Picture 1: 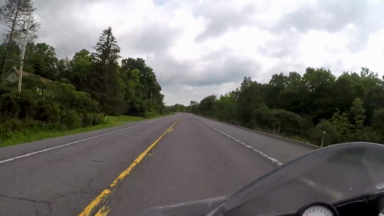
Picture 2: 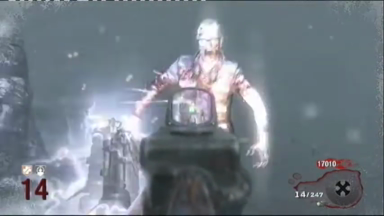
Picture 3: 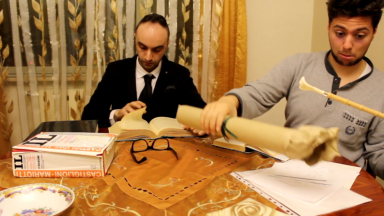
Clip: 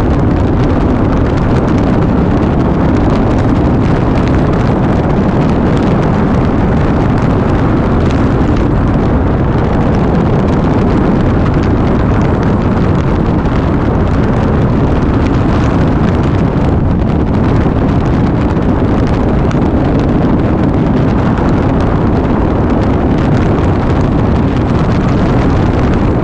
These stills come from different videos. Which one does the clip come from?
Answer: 1